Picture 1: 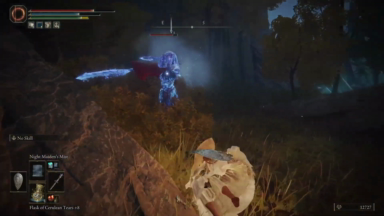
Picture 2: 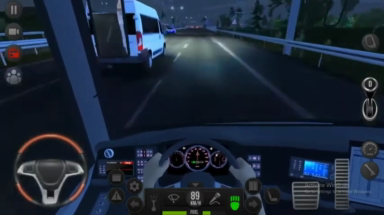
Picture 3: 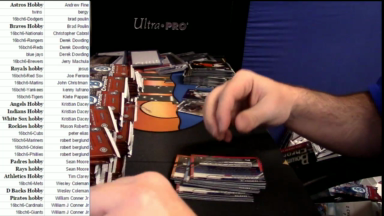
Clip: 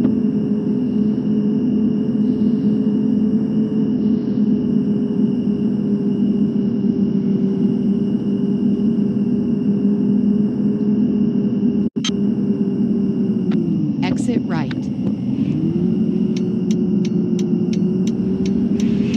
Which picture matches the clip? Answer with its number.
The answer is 2